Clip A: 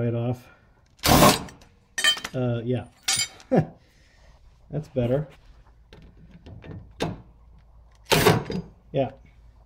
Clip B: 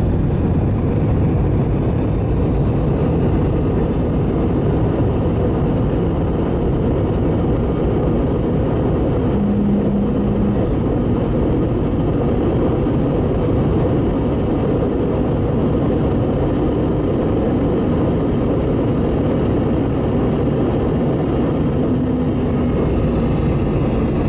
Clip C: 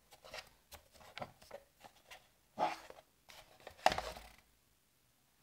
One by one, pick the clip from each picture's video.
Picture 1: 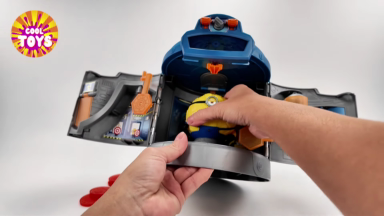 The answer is C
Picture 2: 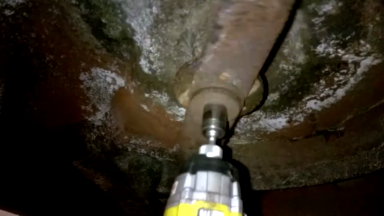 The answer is A